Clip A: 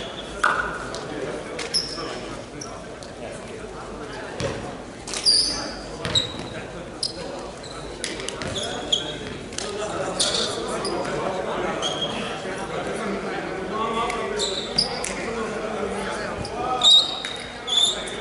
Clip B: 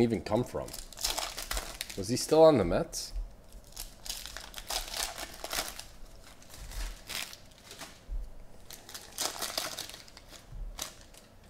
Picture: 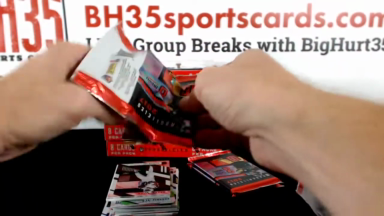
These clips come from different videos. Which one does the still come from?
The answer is B